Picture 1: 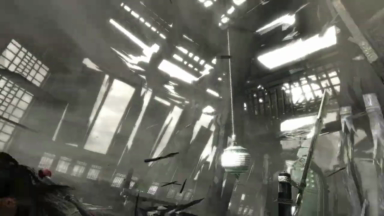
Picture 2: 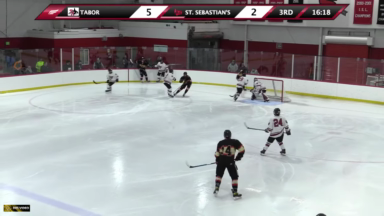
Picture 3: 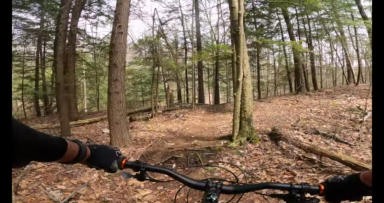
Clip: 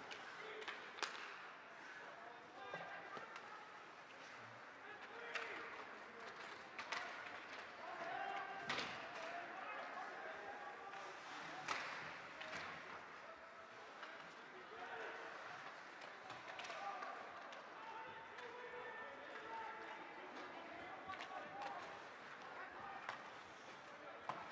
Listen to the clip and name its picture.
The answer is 2